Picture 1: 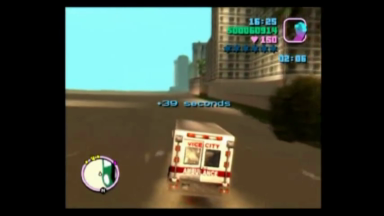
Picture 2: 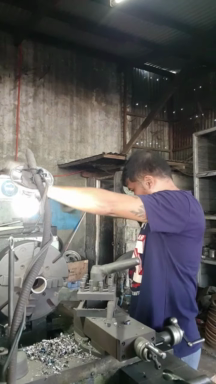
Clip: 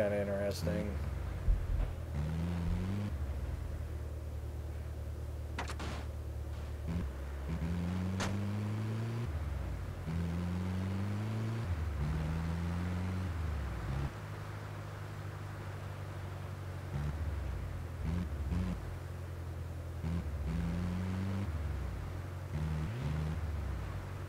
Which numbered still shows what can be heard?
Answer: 1